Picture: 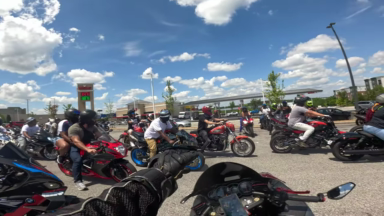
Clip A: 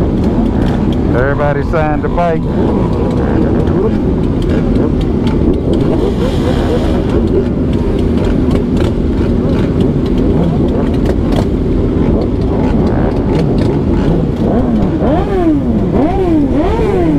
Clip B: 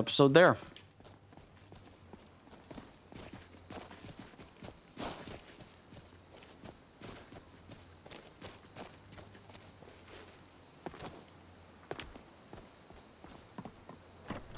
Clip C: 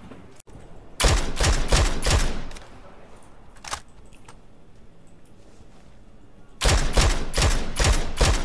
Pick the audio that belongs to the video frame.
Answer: A